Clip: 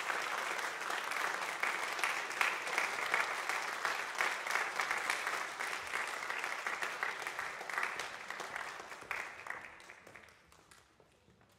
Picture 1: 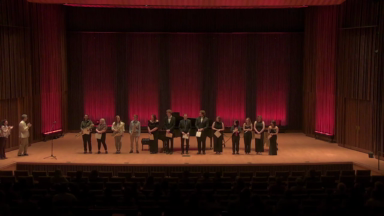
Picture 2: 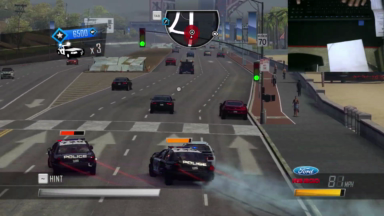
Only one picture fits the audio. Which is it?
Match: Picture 1